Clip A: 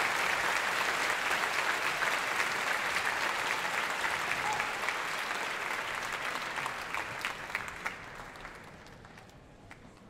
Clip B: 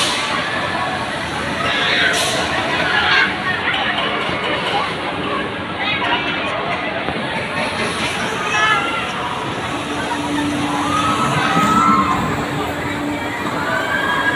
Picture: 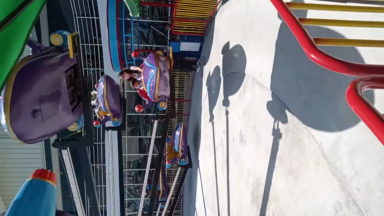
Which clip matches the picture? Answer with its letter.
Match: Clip B